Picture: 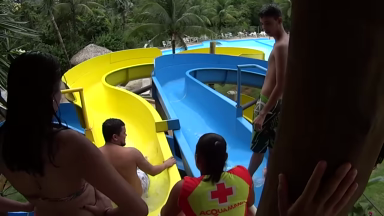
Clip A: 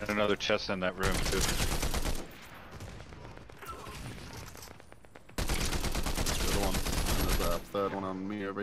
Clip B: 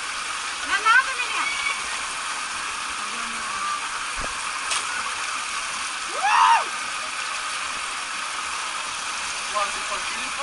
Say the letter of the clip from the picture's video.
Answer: B